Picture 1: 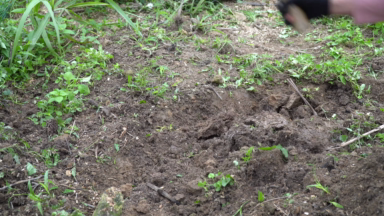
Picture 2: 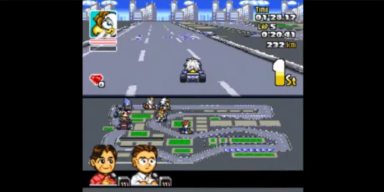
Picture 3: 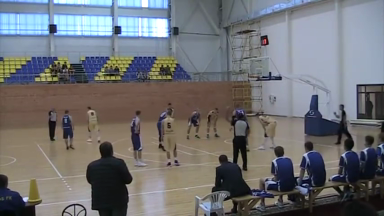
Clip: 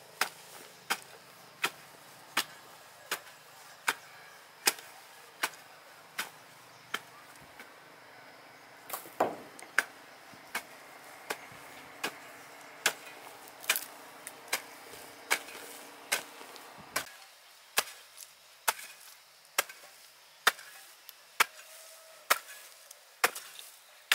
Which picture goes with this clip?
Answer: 1